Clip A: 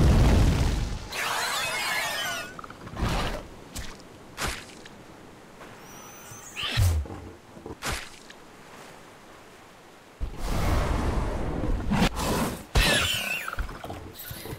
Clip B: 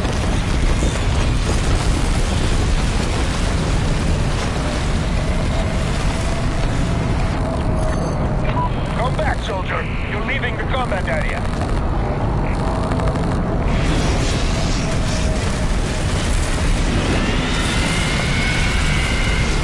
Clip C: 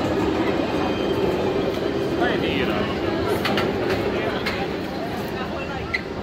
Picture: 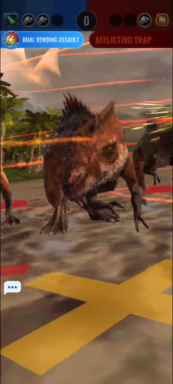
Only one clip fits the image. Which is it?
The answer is A